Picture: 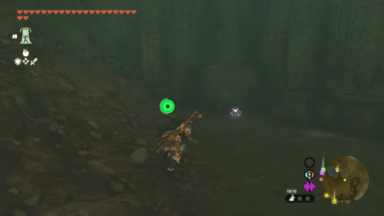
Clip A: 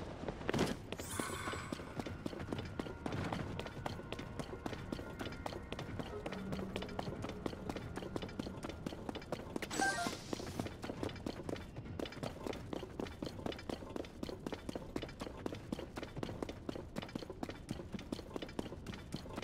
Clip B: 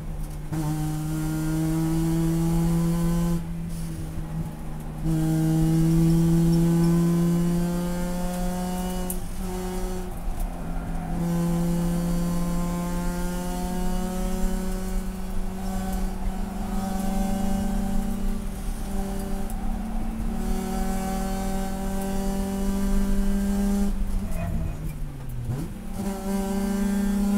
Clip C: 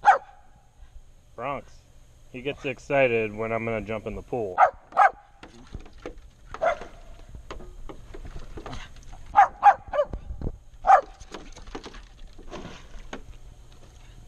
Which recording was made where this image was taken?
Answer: A